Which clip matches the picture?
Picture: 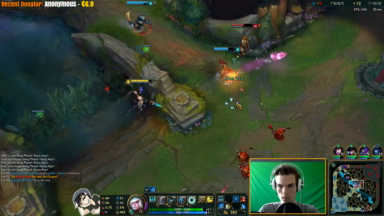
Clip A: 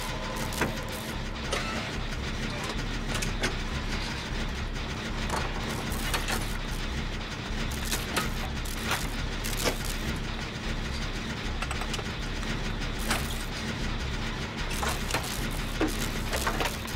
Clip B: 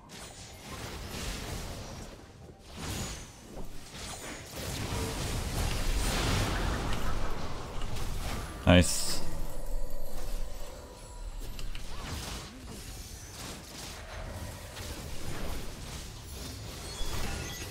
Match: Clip B